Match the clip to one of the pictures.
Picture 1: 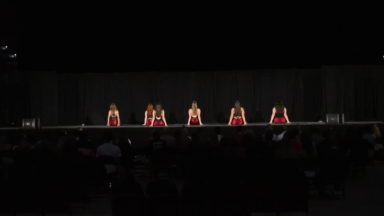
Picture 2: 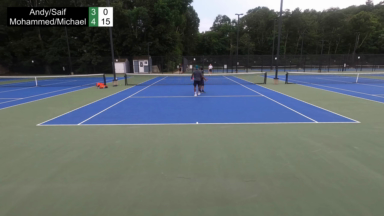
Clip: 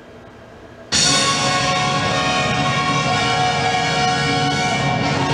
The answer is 1